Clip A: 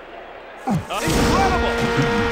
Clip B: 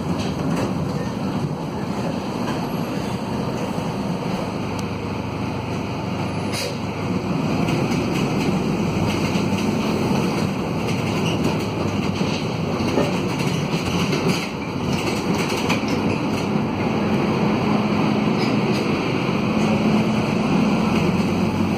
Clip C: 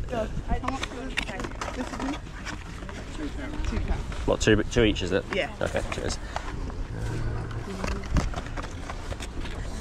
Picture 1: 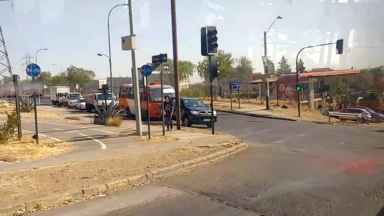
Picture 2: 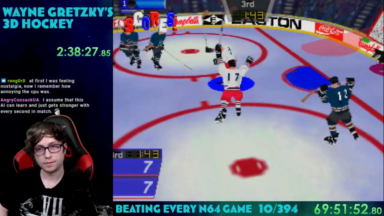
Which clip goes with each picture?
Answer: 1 B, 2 A